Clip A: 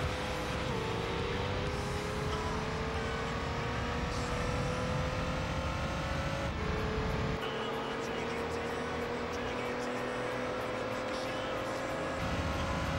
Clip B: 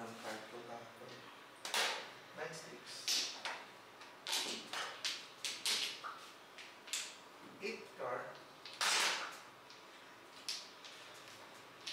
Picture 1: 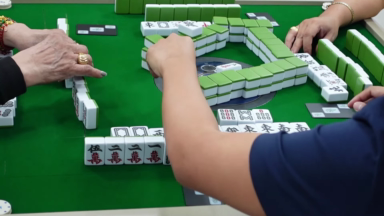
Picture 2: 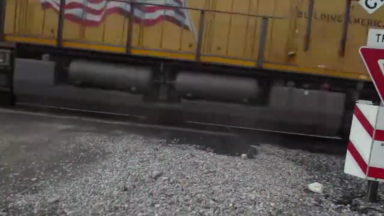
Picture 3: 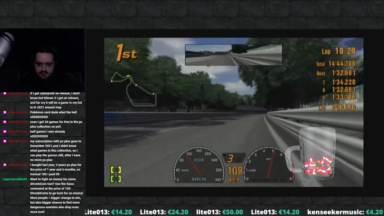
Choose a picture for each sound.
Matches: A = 3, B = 1